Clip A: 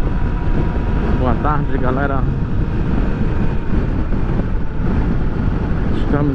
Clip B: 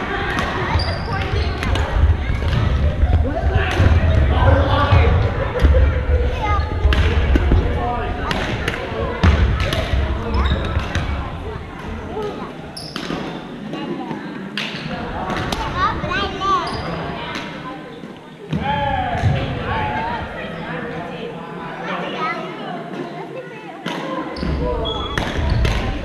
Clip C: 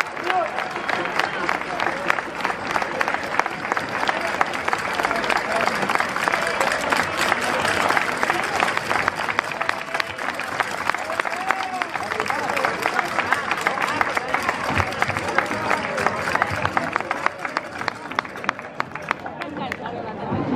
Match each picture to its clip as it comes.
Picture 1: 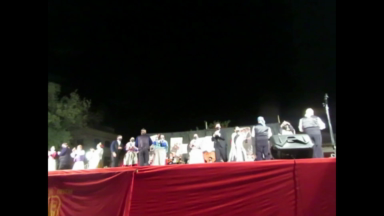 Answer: C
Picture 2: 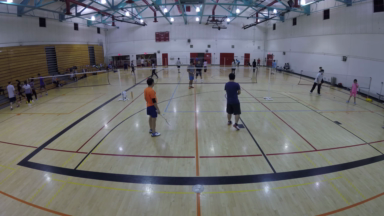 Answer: B